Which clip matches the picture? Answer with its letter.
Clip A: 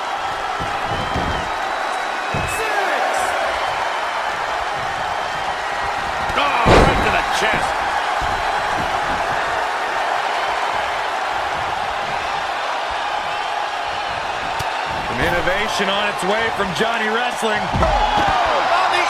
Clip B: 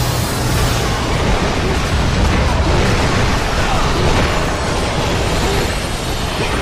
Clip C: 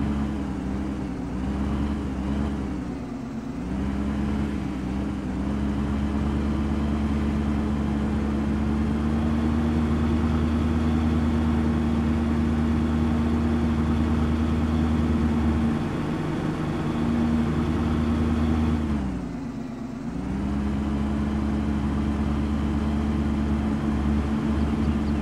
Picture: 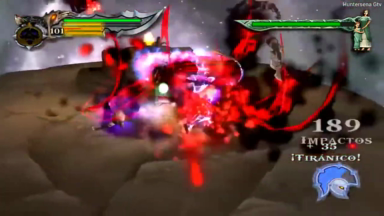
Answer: B